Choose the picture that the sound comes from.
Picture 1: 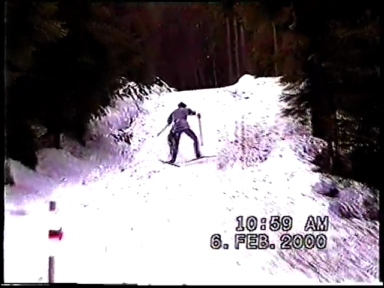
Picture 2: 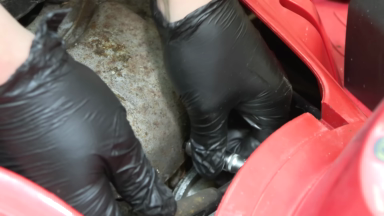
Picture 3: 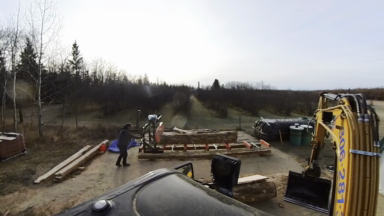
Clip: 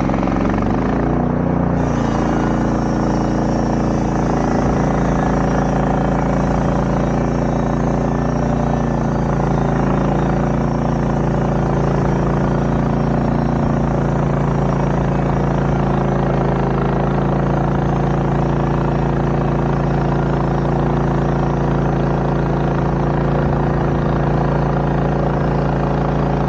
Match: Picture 3